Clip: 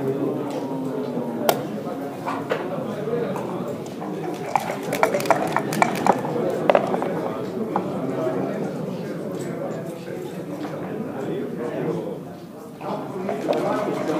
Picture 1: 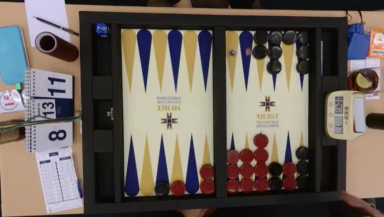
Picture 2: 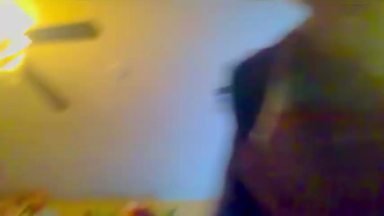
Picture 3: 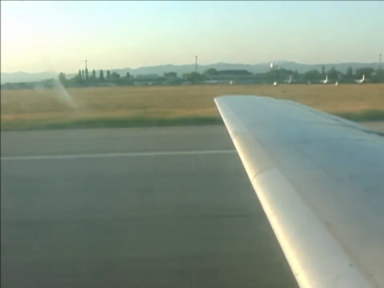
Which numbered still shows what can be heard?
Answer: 1